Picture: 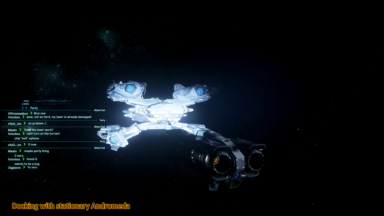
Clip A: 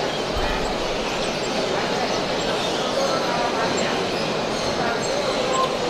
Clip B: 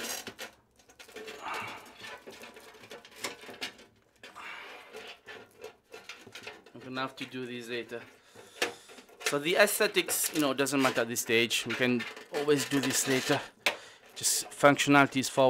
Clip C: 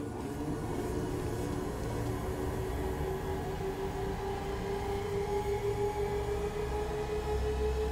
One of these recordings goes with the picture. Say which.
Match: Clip C